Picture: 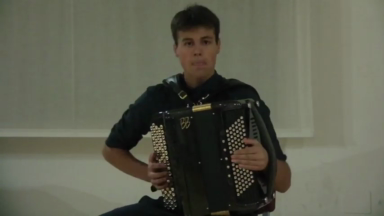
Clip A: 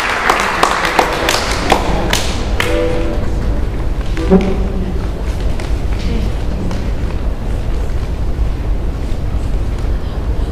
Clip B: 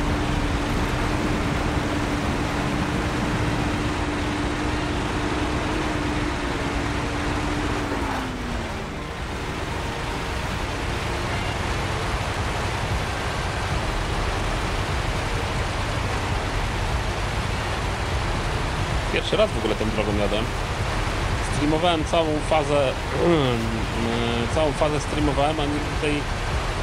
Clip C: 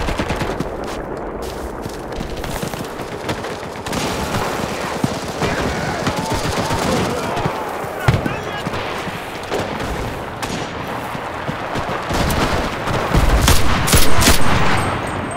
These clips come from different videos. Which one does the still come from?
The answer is A